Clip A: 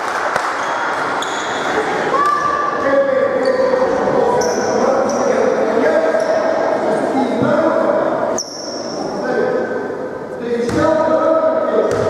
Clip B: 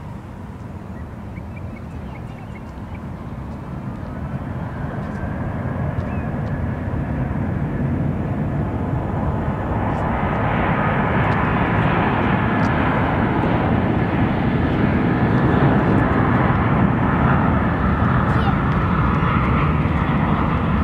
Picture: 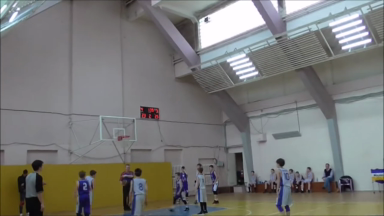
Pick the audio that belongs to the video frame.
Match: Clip A